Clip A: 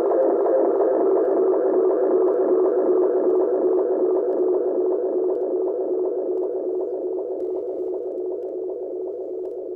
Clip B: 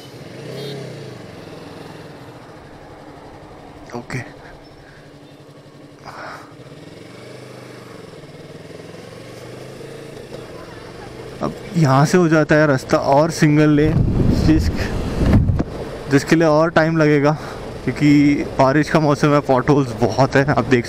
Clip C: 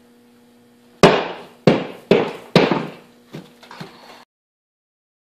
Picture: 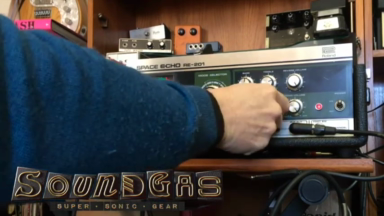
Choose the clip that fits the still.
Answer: A